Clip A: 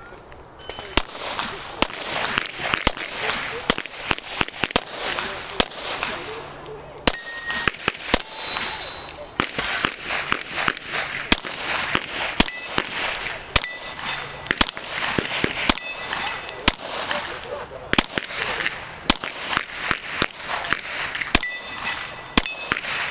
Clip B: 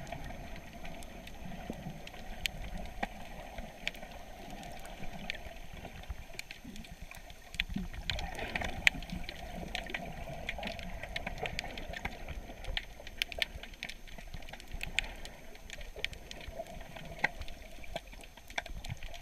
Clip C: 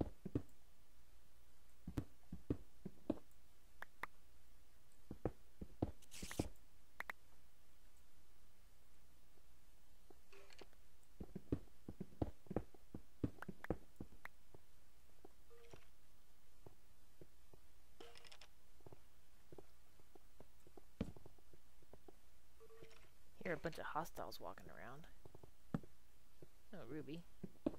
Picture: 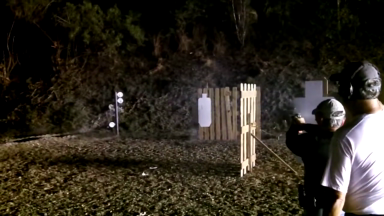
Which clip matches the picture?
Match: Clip A